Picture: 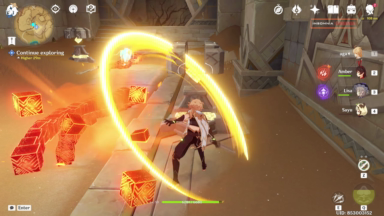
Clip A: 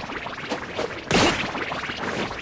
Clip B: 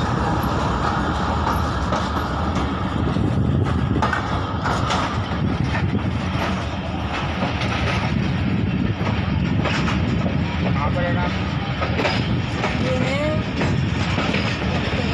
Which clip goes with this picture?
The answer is A